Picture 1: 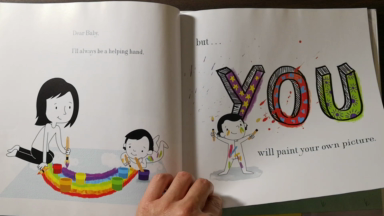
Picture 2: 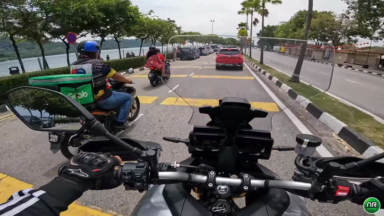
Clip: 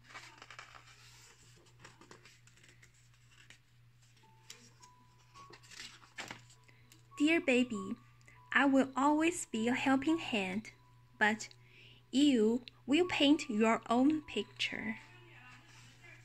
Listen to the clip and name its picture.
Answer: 1